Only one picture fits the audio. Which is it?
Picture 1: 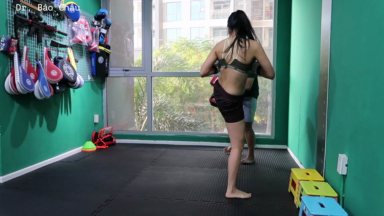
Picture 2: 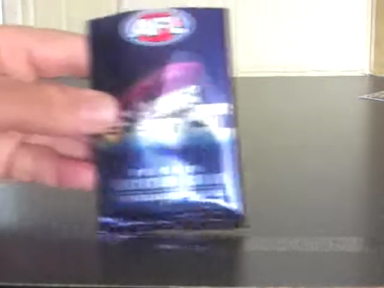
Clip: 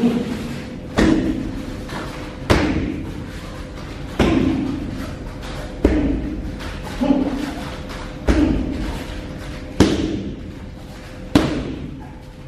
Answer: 1